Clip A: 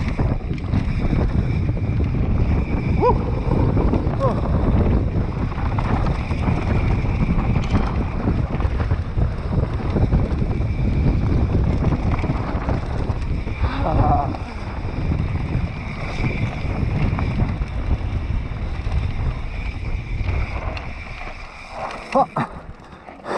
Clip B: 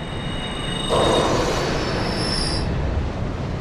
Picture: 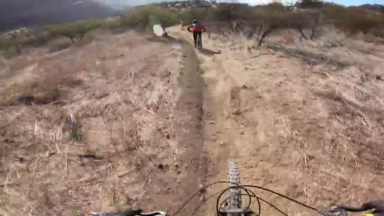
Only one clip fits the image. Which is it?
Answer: A